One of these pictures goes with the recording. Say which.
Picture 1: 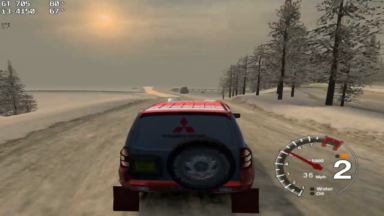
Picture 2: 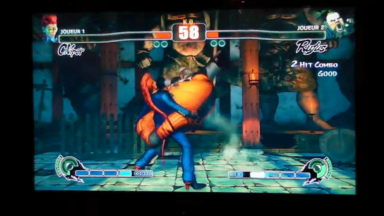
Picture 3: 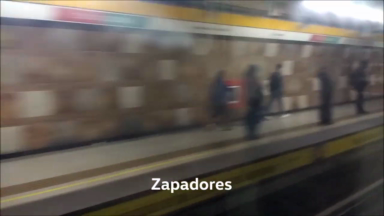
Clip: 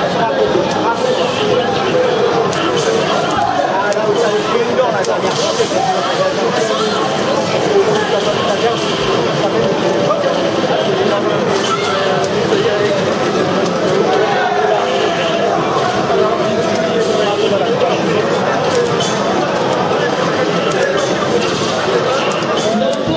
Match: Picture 2